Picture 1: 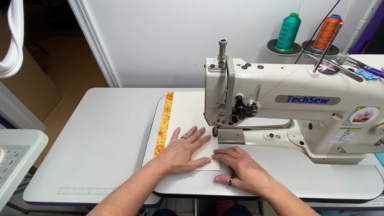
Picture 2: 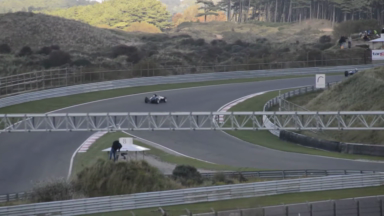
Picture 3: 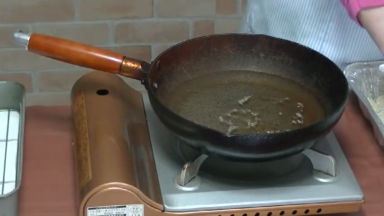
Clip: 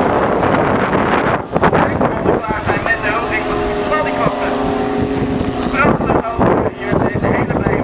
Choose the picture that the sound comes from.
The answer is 2